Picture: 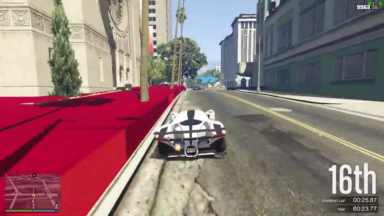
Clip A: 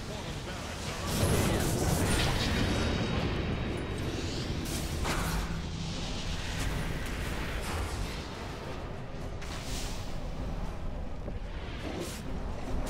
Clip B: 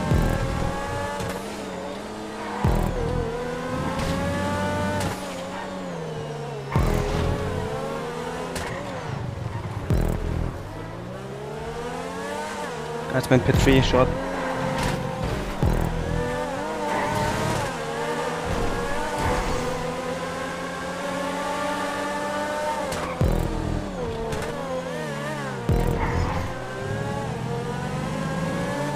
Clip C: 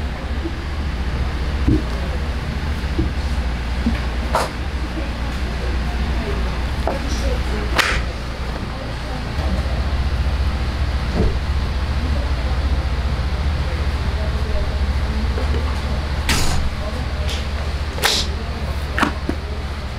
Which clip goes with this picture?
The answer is B